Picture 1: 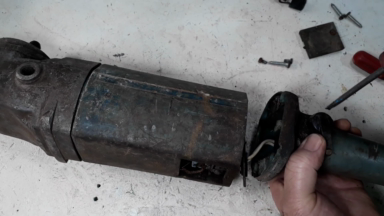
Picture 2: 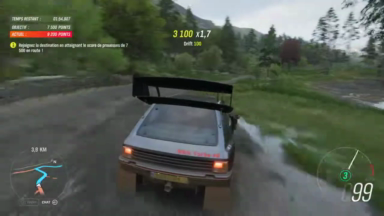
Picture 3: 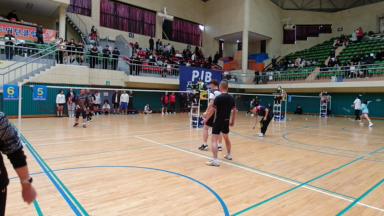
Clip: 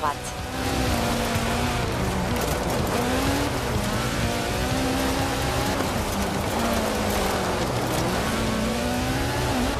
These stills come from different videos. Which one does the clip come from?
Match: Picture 2